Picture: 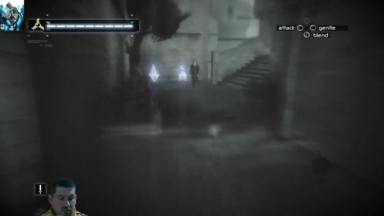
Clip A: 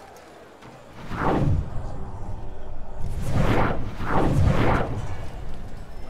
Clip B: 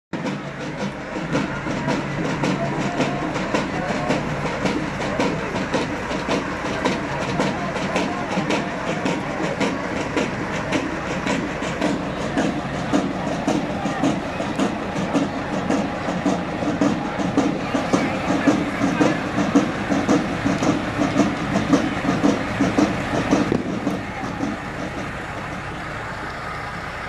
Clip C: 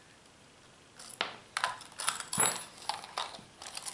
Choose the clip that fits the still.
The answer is A